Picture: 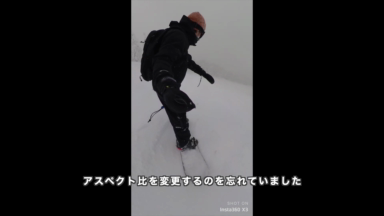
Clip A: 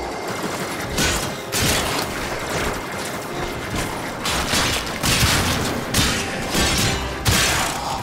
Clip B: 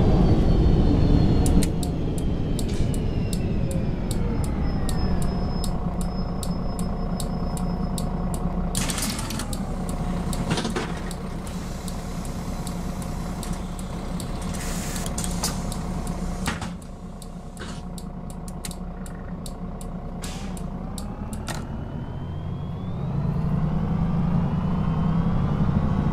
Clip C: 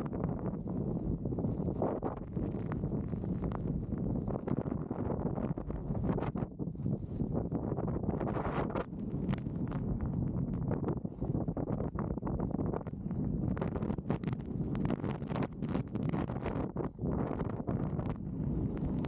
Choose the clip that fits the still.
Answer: C